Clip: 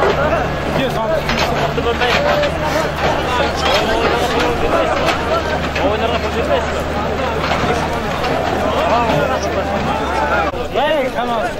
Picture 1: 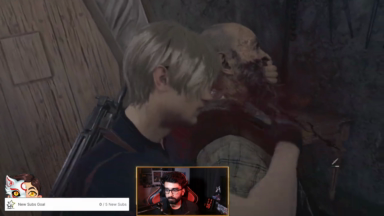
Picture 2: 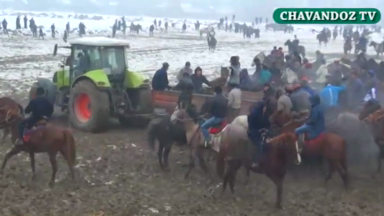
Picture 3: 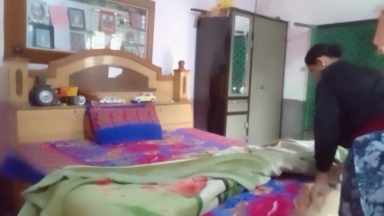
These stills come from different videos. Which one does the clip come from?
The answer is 2